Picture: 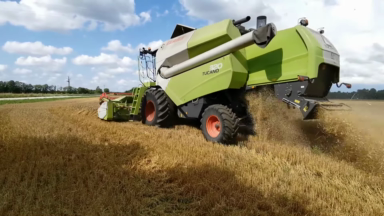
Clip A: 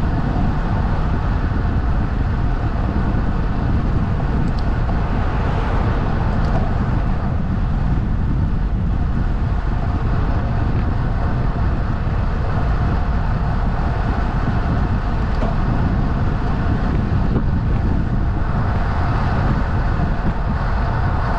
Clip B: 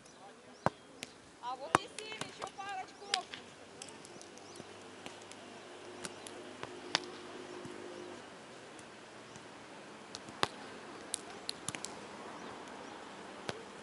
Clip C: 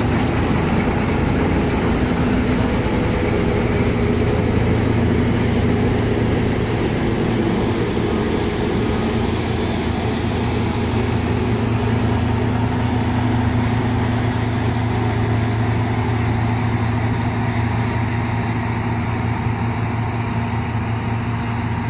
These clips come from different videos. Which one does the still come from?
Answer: C